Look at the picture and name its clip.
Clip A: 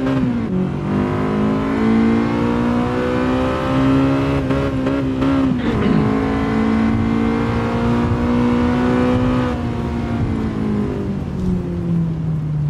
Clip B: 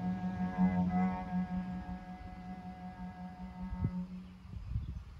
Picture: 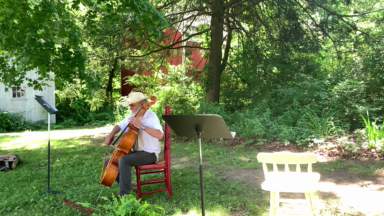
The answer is B